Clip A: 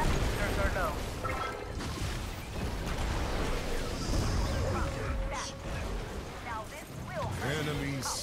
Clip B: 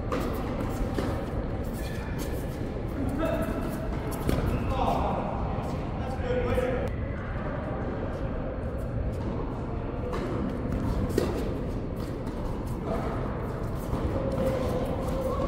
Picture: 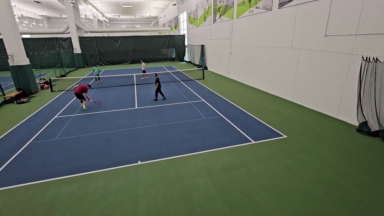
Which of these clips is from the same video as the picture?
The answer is B